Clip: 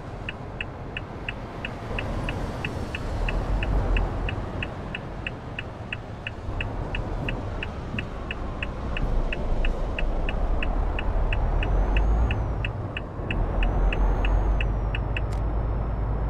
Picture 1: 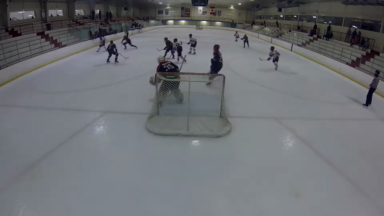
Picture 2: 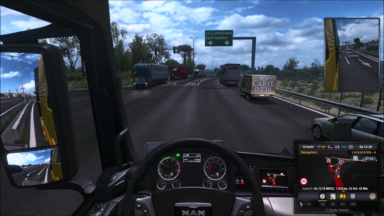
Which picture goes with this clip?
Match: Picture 2